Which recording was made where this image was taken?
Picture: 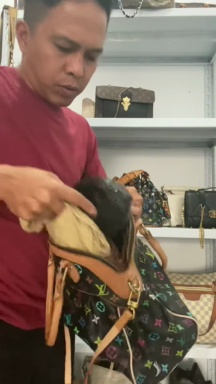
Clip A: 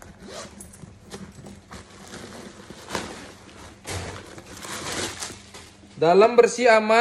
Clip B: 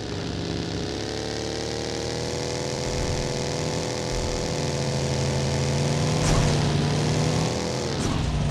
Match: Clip A